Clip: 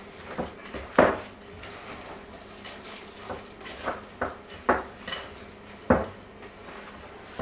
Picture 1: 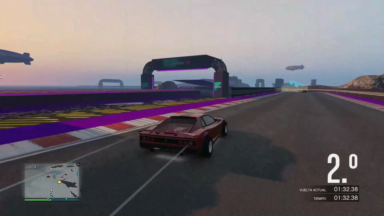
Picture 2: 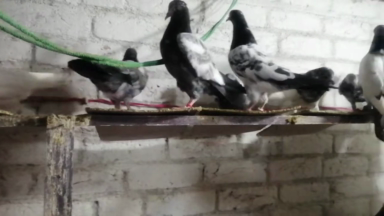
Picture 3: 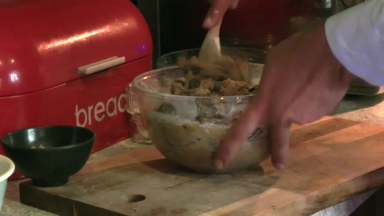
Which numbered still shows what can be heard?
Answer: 3